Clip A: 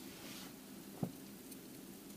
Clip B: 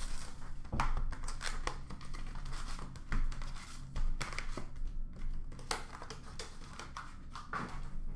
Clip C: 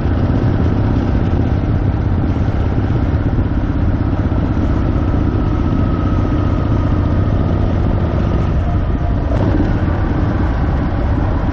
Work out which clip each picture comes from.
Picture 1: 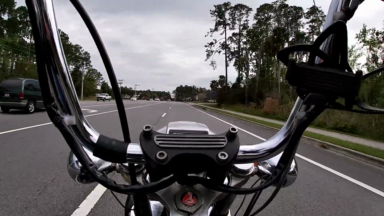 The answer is C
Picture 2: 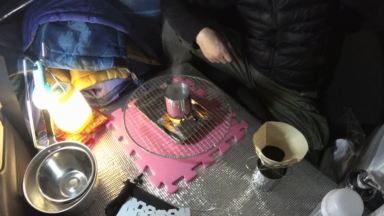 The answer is A